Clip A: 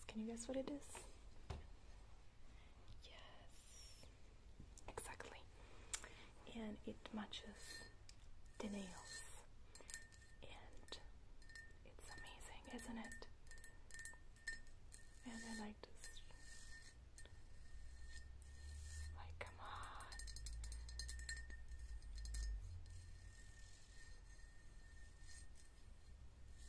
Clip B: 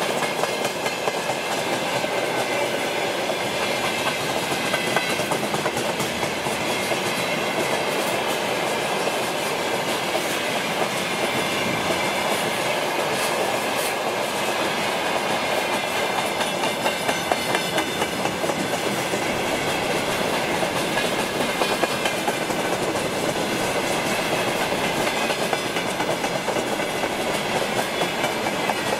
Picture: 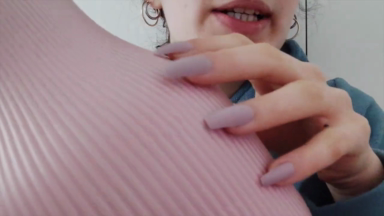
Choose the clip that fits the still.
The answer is A